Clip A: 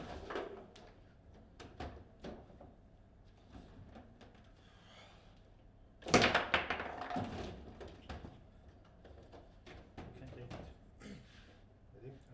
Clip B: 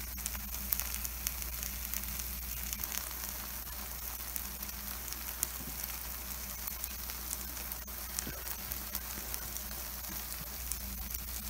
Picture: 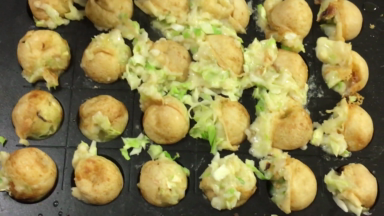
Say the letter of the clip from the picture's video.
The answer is B